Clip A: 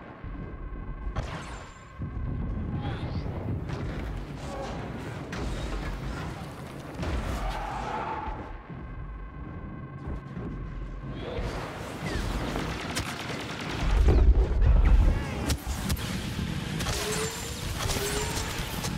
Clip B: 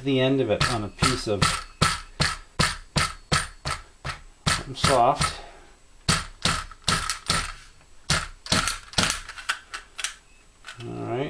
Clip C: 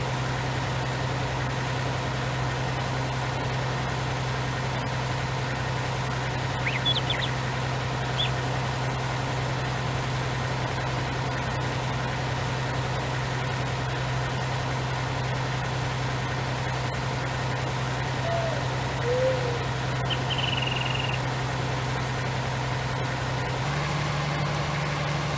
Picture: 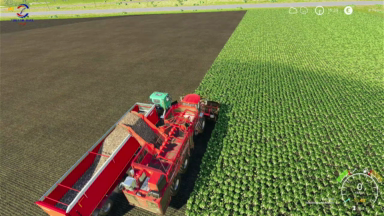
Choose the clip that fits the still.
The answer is C